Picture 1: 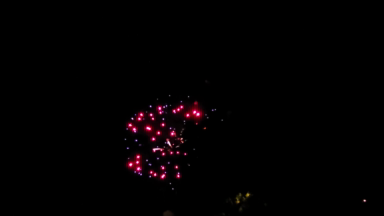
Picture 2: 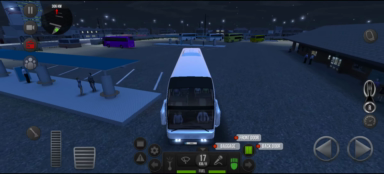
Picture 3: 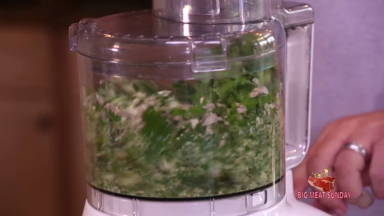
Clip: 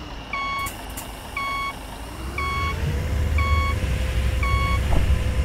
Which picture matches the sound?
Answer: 2